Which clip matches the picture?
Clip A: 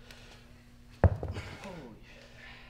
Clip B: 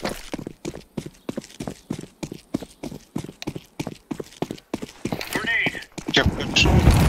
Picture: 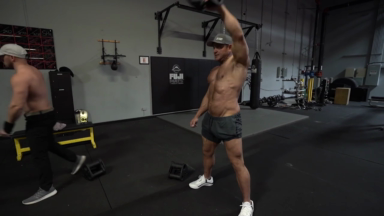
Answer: A